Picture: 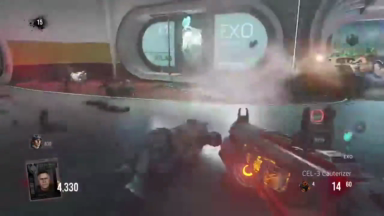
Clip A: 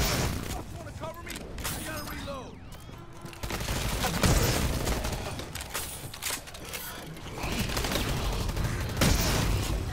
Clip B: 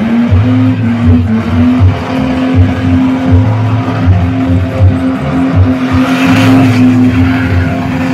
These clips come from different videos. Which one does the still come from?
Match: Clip A